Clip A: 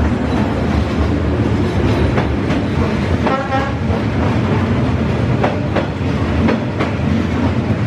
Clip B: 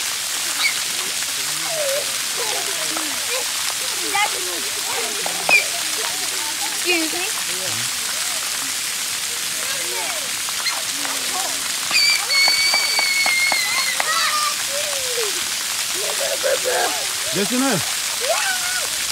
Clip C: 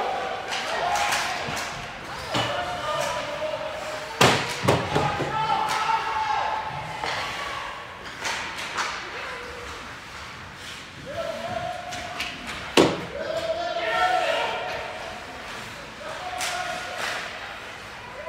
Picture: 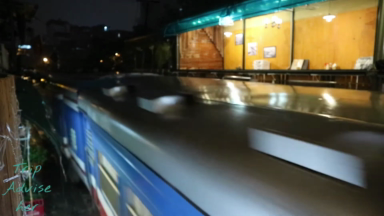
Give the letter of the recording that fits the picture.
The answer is A